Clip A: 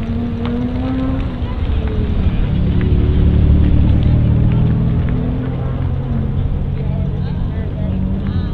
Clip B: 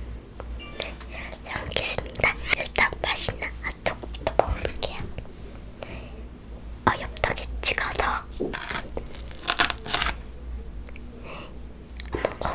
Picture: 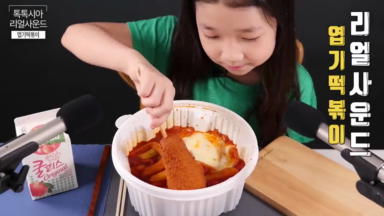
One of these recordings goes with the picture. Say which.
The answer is B